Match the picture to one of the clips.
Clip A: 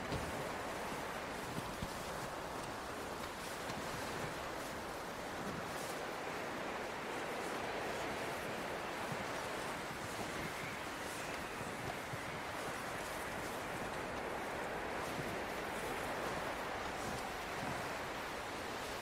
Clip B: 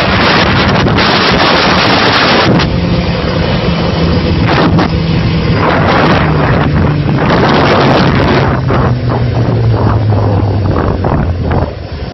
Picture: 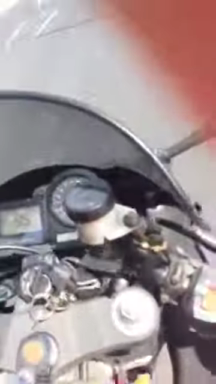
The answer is B